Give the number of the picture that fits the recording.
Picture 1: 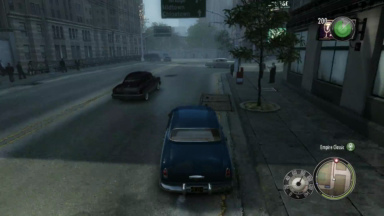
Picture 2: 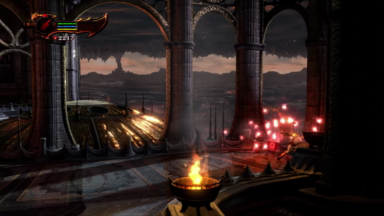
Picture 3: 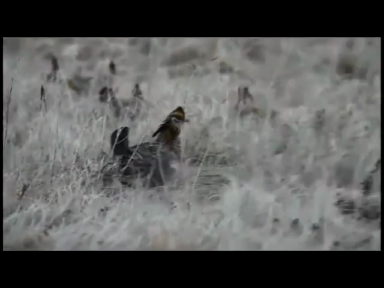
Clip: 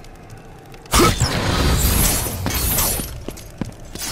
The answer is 2